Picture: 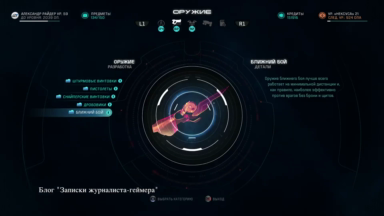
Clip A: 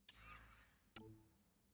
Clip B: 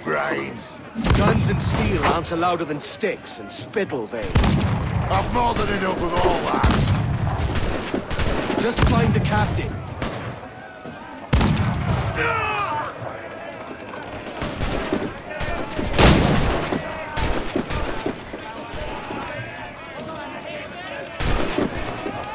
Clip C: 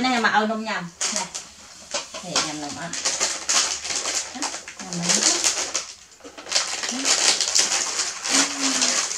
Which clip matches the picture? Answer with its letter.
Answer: A